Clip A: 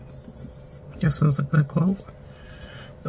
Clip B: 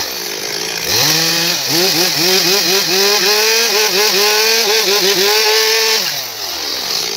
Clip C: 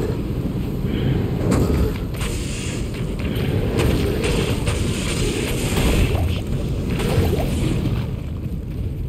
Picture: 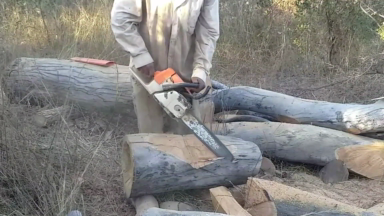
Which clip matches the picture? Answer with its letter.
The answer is B